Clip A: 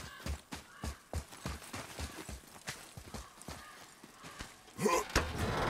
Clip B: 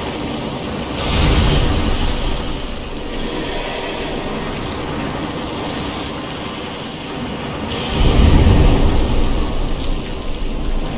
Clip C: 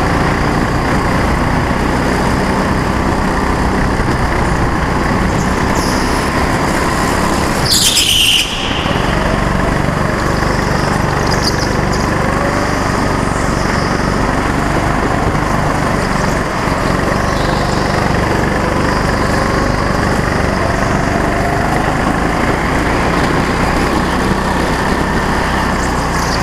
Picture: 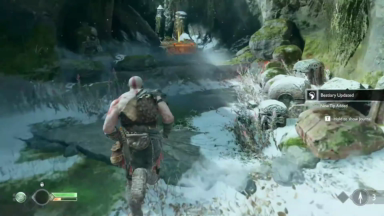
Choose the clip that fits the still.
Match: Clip A